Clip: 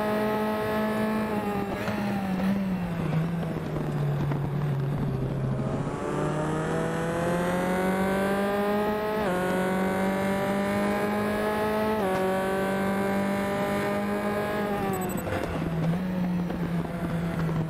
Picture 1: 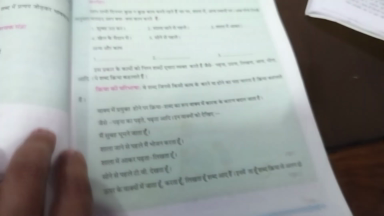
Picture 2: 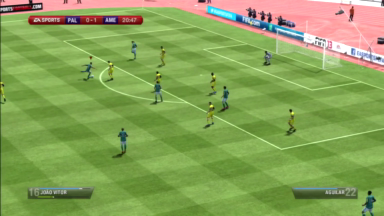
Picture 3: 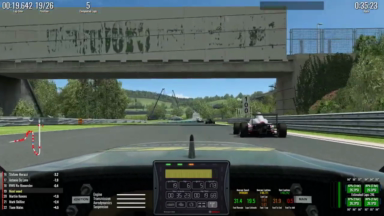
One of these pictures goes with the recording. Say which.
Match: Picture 3